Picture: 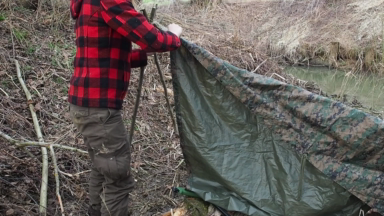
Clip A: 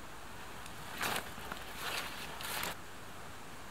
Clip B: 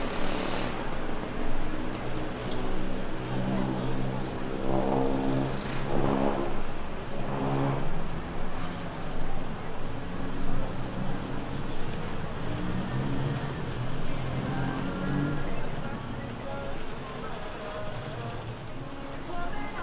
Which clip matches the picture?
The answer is A